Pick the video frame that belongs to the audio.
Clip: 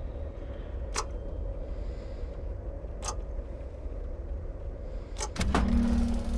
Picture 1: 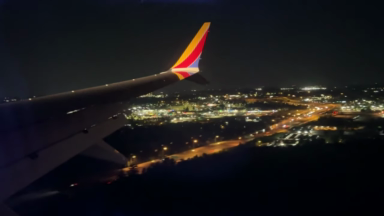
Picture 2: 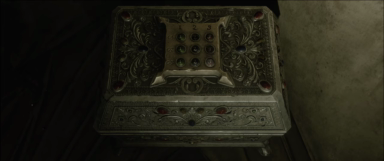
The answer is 2